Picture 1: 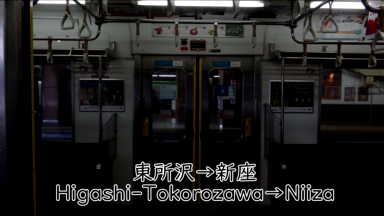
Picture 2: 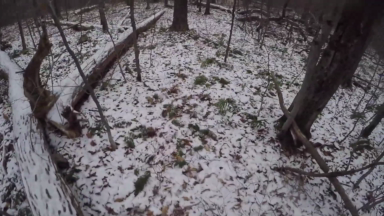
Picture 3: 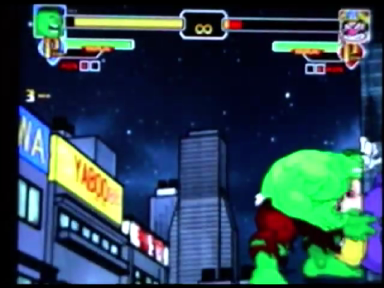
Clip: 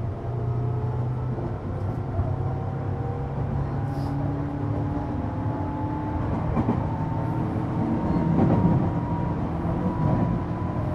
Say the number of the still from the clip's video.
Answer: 1